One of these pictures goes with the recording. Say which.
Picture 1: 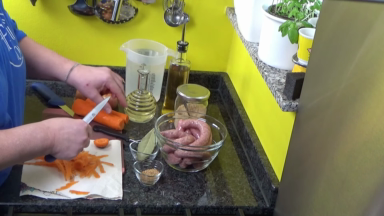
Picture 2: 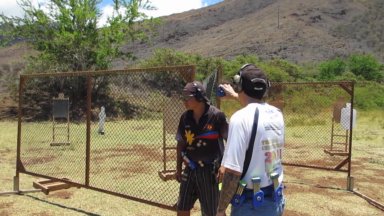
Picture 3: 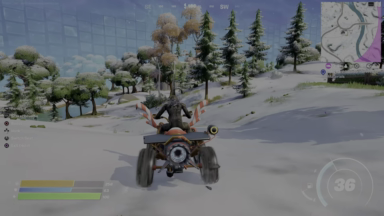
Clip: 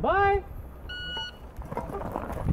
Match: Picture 2